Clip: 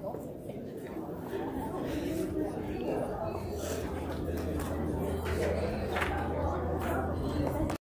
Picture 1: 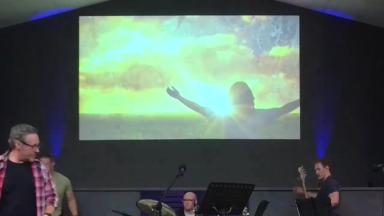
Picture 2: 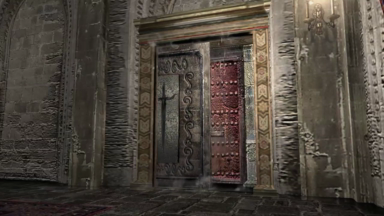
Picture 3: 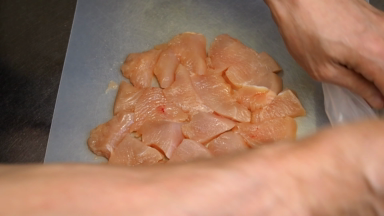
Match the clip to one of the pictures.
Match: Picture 1